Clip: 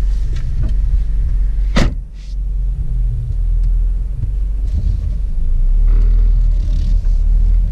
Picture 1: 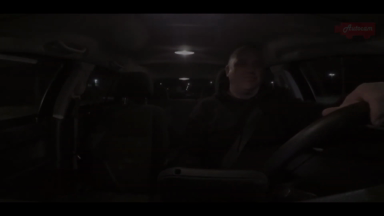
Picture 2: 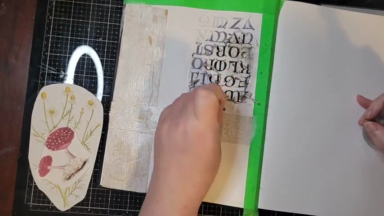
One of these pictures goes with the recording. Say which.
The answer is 1